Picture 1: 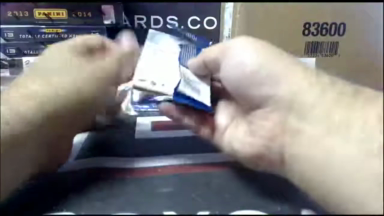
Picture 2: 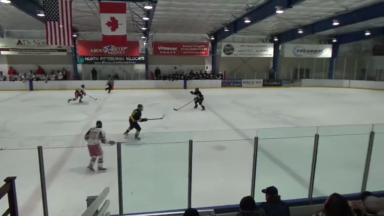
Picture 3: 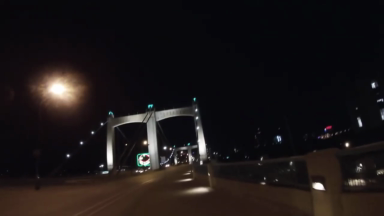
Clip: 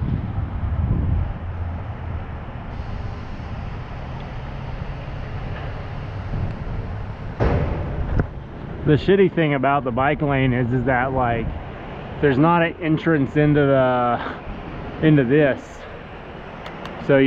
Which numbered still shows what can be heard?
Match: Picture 3